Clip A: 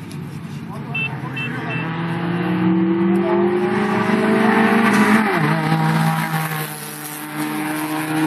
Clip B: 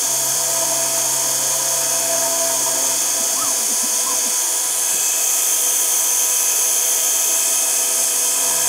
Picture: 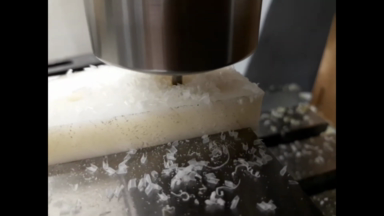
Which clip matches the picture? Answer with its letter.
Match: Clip B